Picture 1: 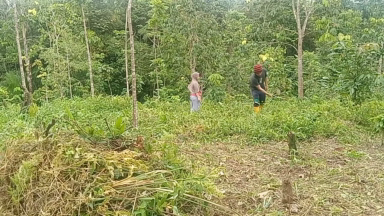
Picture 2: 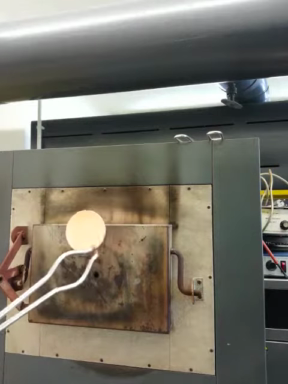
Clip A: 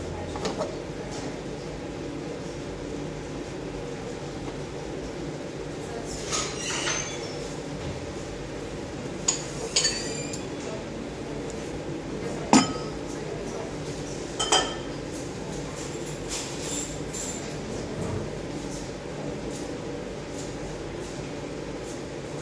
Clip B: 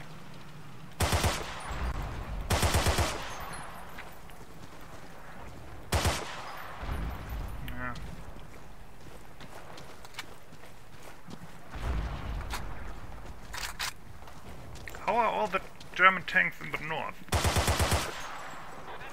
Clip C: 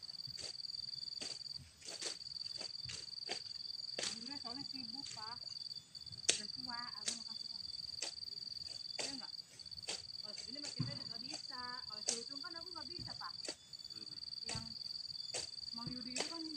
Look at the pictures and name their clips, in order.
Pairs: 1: C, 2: A